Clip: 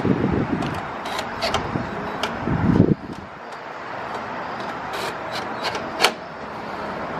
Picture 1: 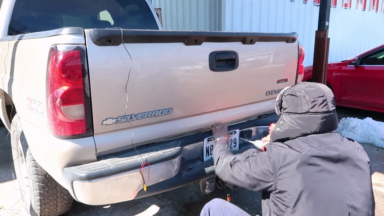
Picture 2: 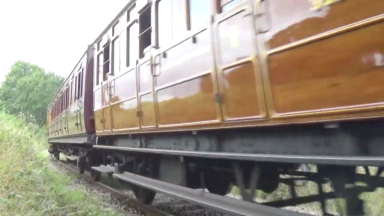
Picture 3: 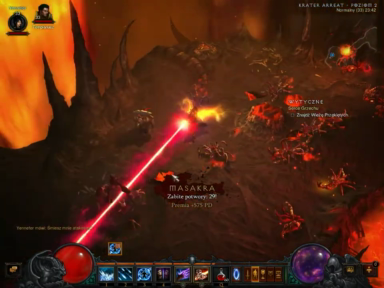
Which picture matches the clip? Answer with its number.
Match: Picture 1